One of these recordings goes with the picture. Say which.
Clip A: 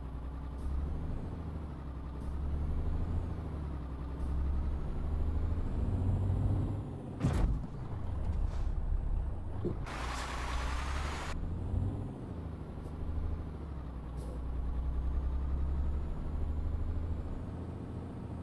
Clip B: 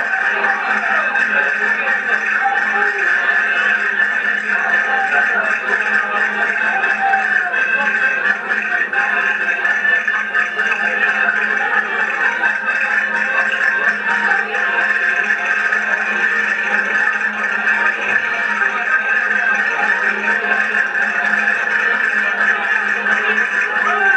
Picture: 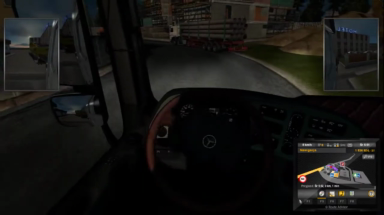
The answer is A